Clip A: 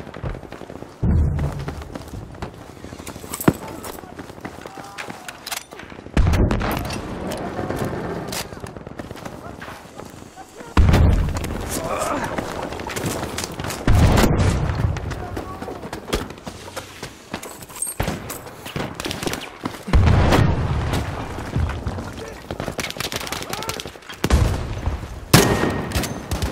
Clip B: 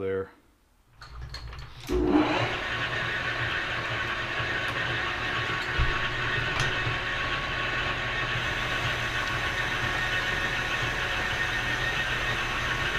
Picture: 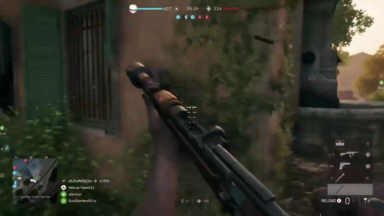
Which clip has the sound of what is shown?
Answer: A